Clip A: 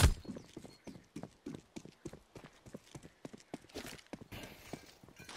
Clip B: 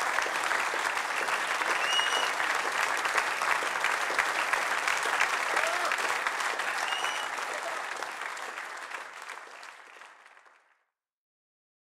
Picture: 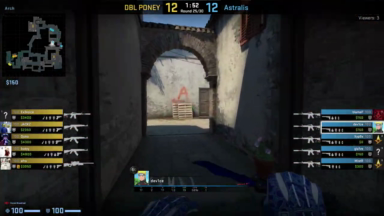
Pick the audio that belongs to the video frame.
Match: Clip A